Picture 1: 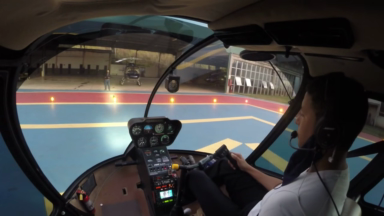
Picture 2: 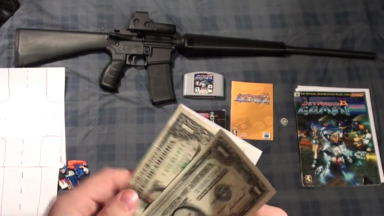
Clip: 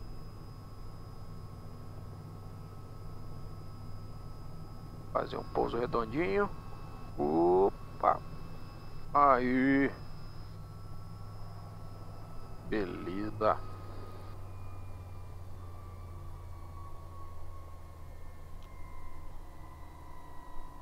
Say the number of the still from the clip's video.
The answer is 1